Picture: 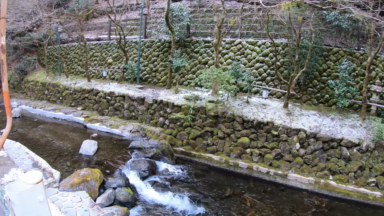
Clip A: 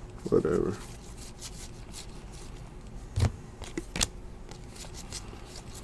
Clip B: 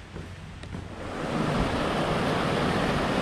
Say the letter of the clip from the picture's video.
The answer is B